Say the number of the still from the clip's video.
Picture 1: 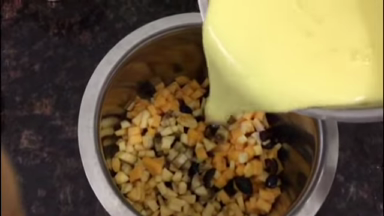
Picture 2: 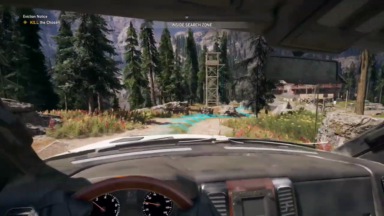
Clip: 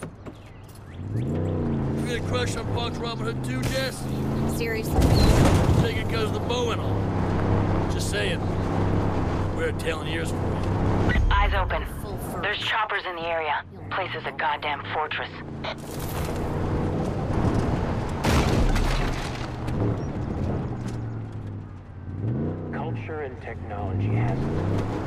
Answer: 2